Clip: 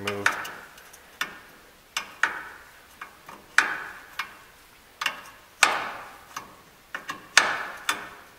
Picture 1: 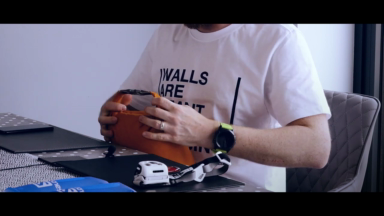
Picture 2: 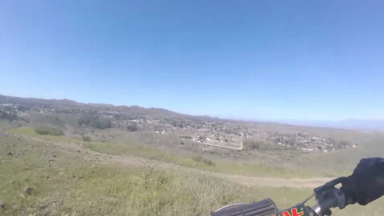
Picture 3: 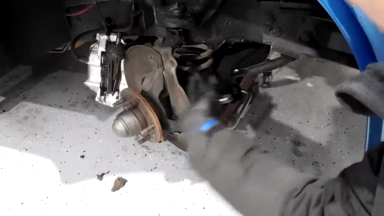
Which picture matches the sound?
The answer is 3